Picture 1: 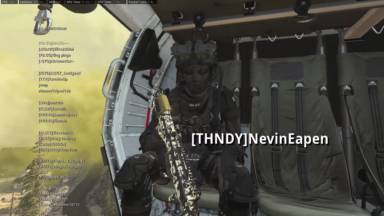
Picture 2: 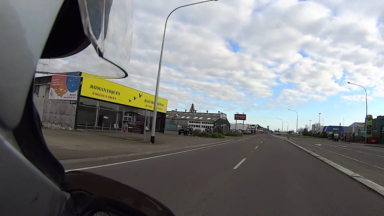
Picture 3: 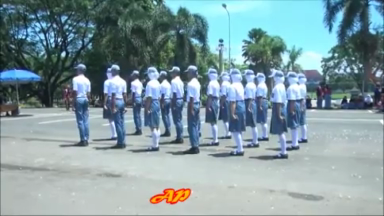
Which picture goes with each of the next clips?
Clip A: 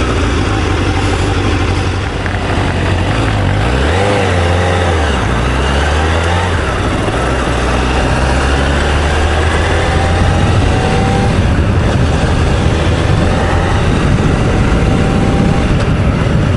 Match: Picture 2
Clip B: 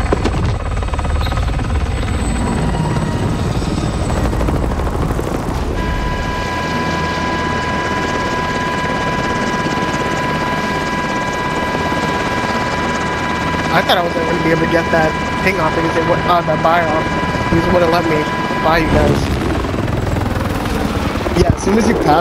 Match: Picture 1